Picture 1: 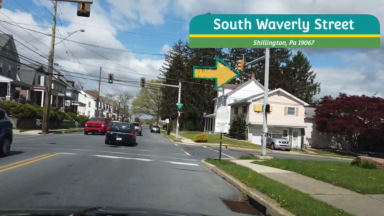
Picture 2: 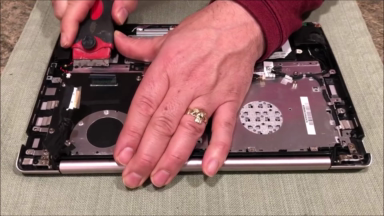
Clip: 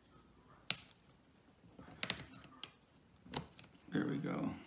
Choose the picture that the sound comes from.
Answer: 2